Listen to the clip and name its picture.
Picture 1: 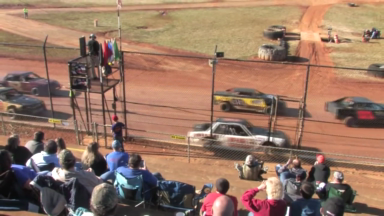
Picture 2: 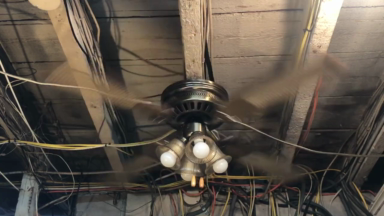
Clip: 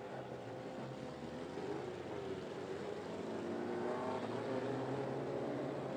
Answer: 1